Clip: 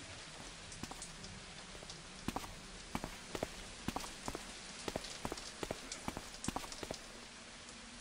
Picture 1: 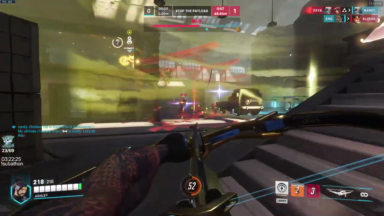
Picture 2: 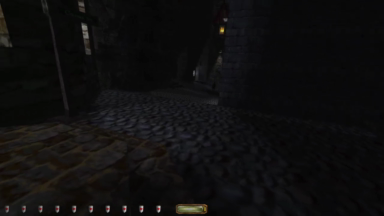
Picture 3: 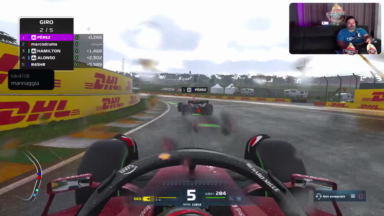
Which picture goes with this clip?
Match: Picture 2